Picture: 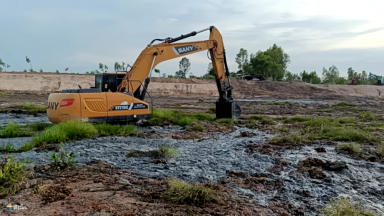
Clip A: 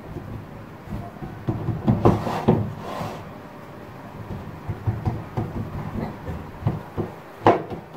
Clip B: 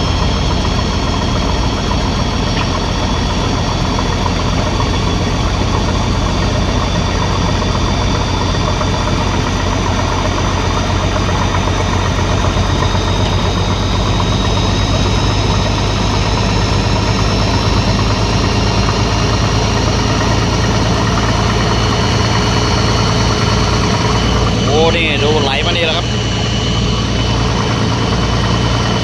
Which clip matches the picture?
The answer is B